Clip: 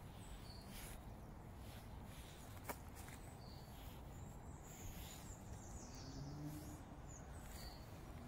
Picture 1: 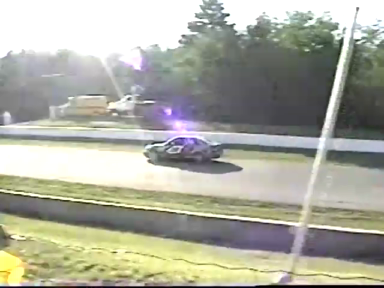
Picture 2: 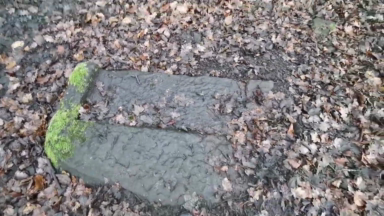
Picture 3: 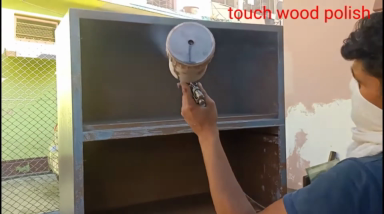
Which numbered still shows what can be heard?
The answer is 2